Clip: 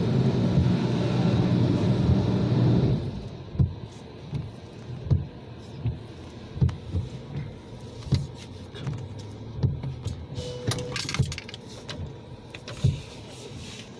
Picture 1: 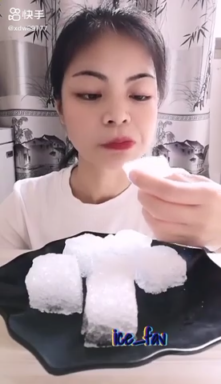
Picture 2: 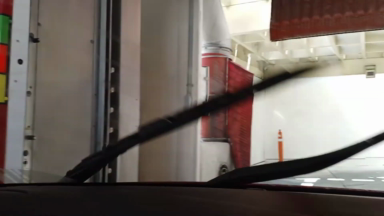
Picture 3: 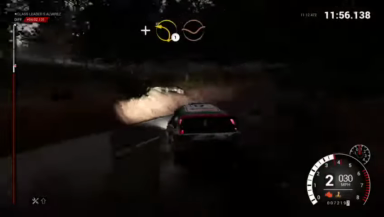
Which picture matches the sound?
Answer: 2